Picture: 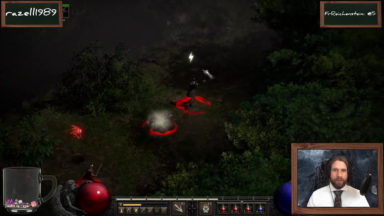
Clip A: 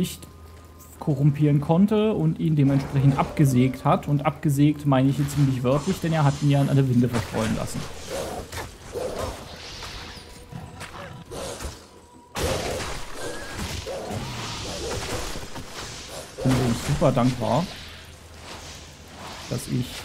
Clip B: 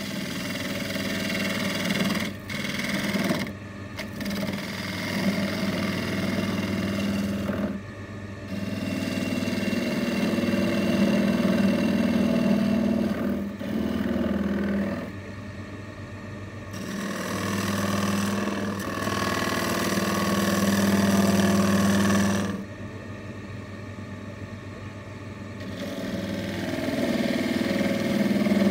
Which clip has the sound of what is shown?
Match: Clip A